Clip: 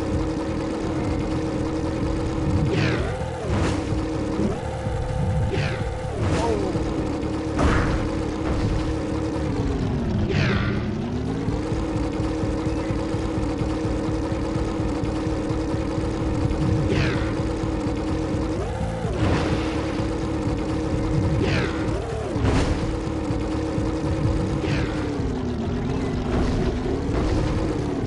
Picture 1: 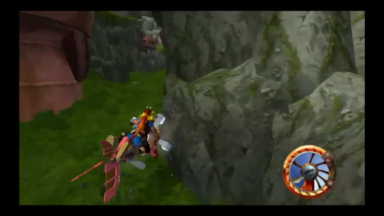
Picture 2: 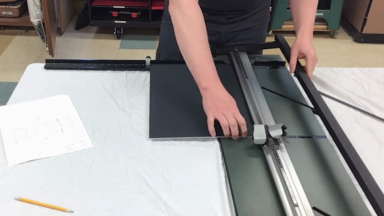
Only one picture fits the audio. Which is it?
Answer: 1